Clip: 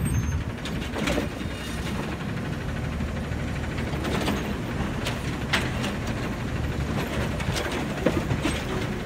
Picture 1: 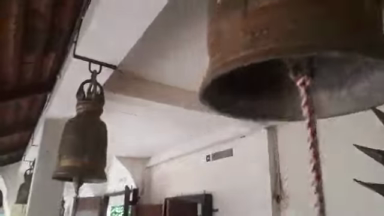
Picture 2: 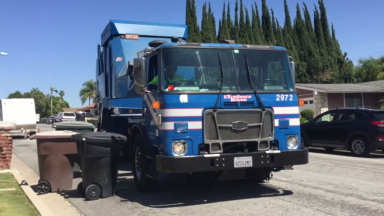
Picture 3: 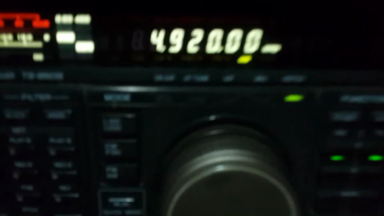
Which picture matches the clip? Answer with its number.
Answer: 2